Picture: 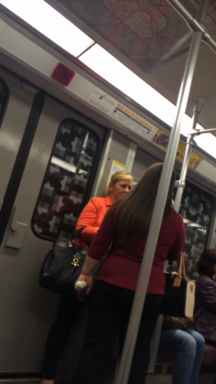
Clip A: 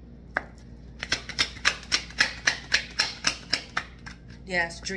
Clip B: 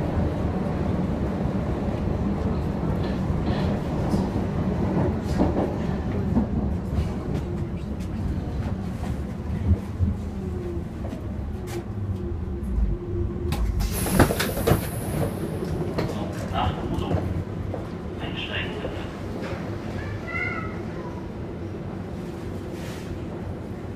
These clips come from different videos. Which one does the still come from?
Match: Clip B